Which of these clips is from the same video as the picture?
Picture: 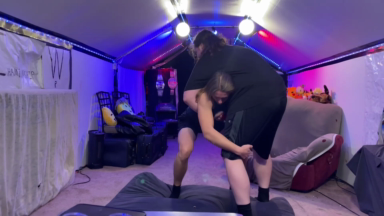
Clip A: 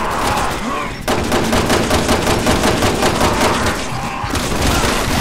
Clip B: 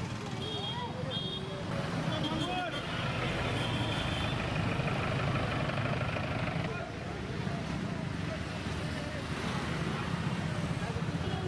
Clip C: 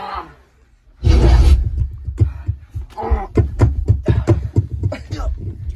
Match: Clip C